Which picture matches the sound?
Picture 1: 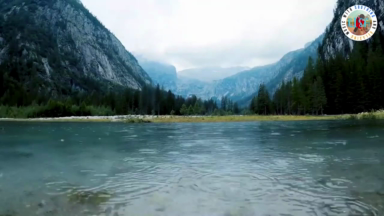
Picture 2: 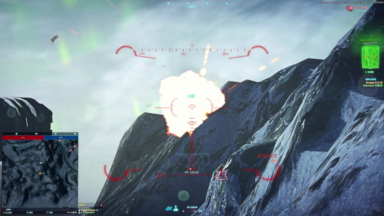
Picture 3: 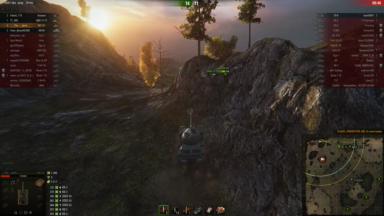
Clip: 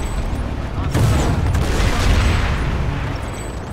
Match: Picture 2